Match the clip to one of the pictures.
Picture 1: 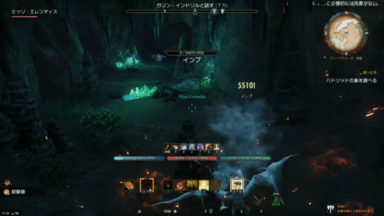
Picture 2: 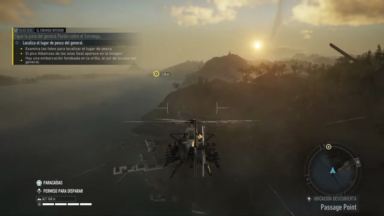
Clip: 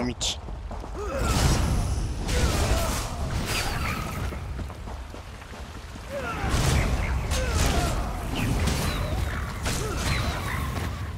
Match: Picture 1